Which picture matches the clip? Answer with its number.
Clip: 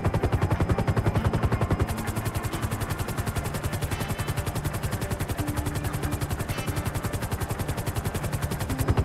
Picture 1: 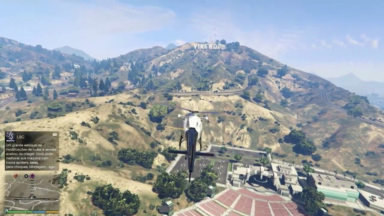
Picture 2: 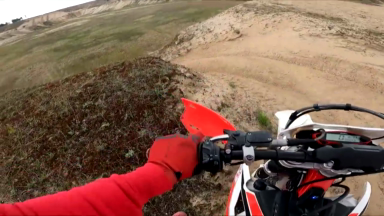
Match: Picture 1